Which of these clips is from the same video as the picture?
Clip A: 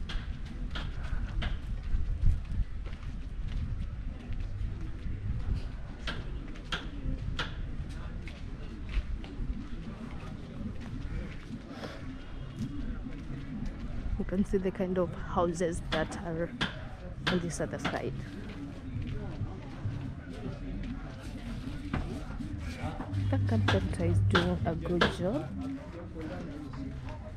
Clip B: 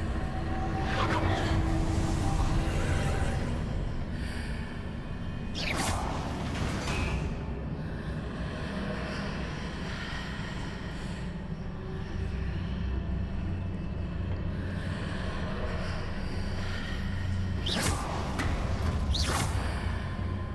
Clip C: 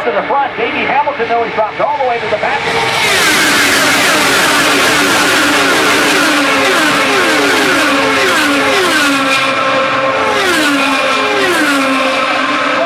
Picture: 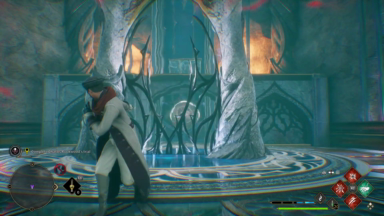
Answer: B